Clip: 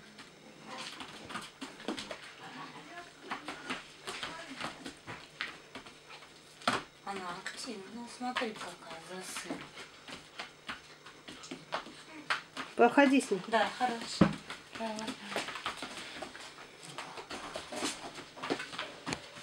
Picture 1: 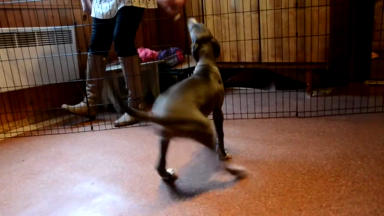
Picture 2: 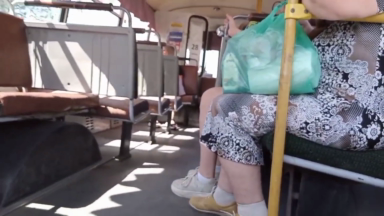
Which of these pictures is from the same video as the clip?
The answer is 1